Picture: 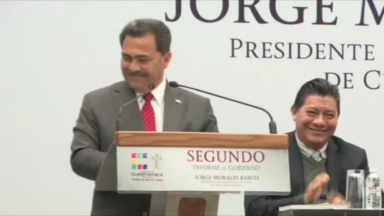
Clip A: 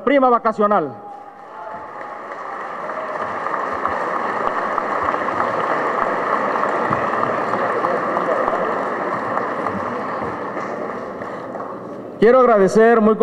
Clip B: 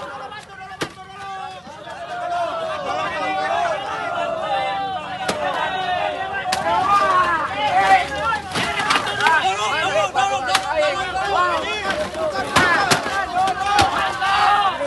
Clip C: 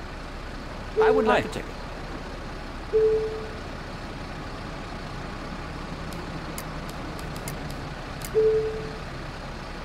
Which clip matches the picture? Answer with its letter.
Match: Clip A